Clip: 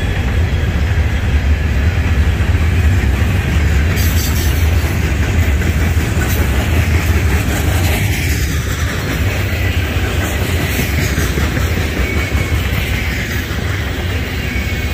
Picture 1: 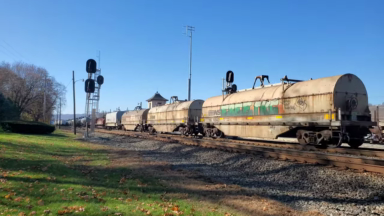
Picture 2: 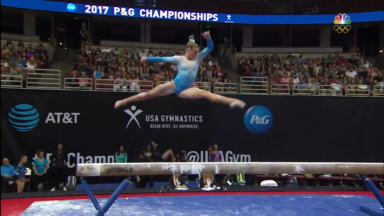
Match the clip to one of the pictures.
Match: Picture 1